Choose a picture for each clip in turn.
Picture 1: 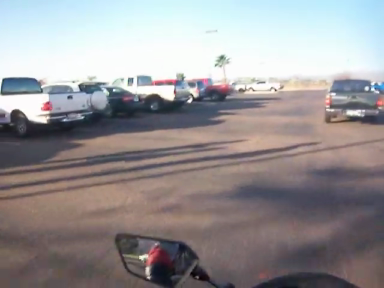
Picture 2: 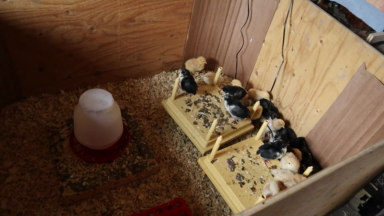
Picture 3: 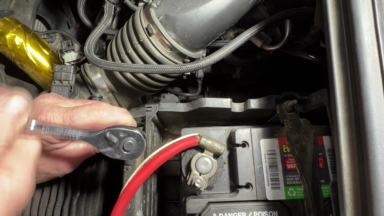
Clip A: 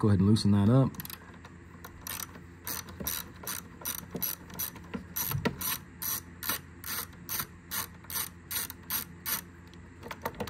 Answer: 3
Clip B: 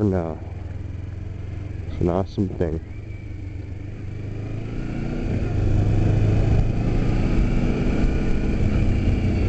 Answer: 1